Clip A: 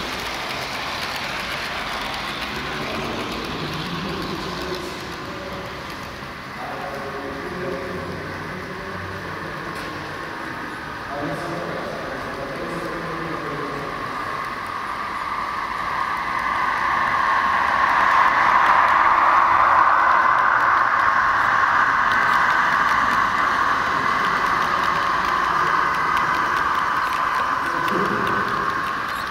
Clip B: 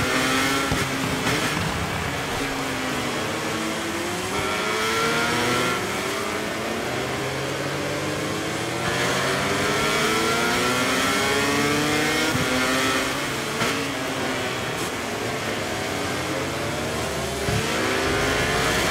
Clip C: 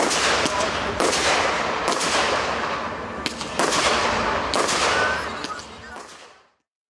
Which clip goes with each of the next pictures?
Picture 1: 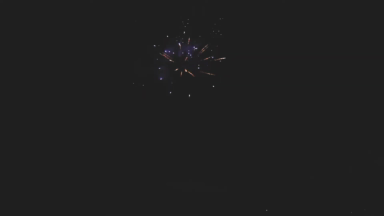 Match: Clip C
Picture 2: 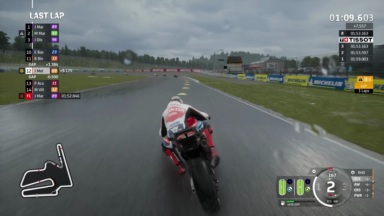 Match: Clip B